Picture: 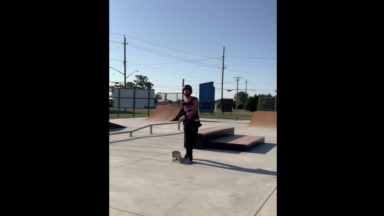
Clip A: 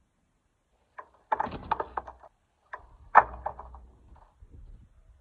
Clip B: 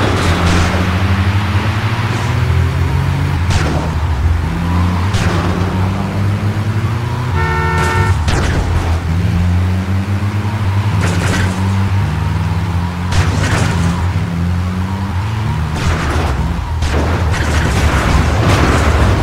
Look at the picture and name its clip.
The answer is A